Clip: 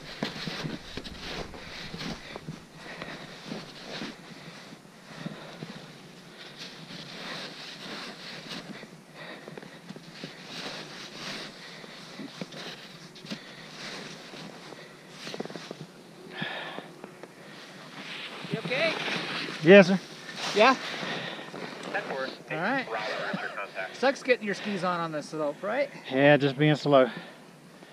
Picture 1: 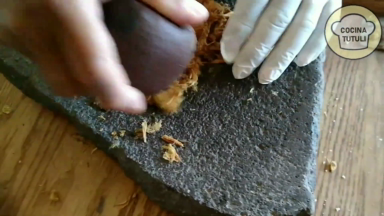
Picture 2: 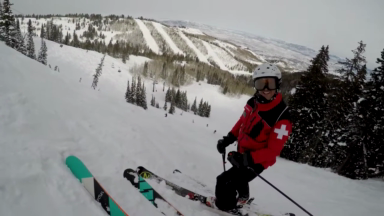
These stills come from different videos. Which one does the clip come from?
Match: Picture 2